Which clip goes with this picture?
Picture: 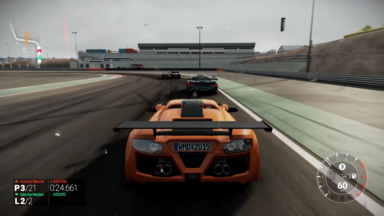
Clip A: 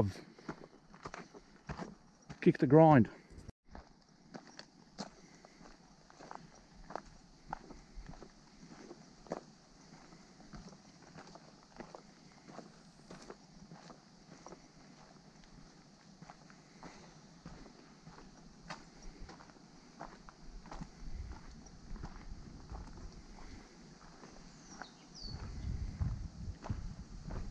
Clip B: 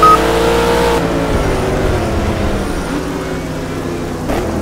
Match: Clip B